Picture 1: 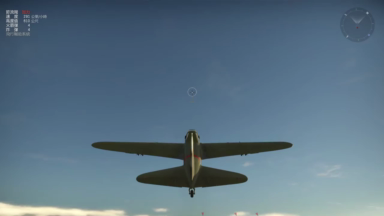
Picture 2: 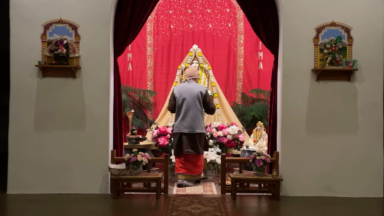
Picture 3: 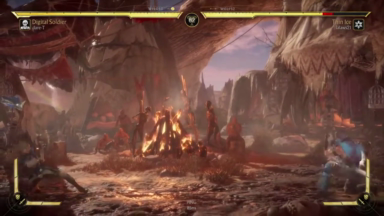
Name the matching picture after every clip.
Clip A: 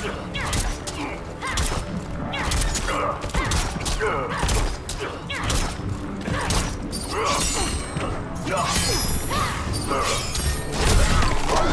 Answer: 3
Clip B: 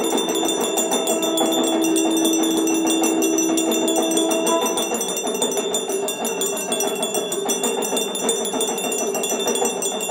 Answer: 2